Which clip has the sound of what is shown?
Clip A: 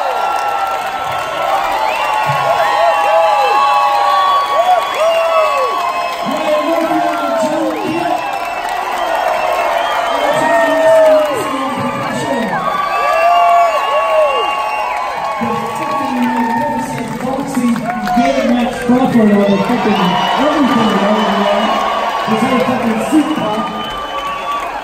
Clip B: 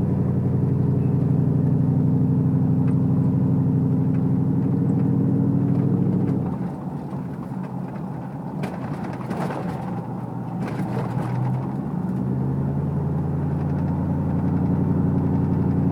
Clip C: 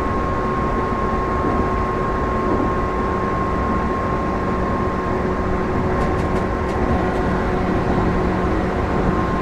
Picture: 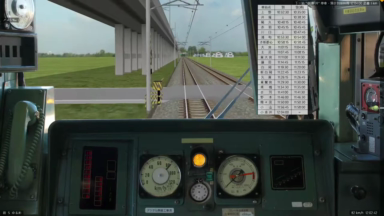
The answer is C